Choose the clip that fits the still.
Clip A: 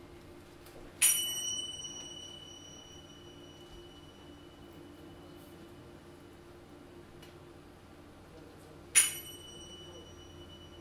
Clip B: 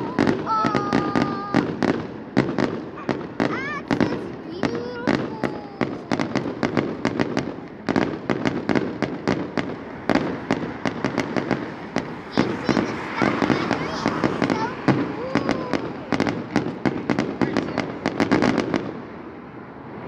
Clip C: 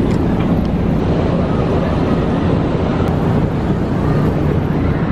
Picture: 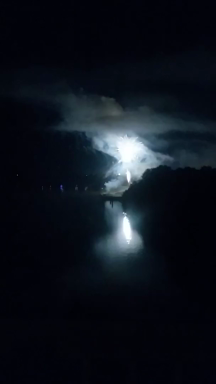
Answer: B